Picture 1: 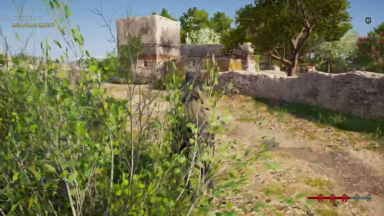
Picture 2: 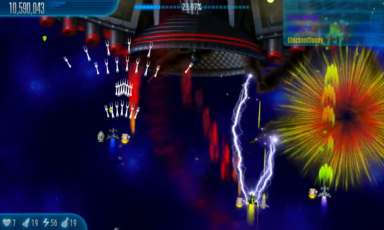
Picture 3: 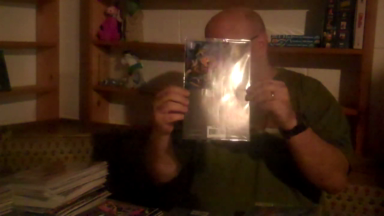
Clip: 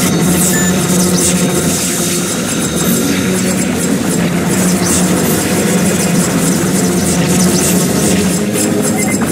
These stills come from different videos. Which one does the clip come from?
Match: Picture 2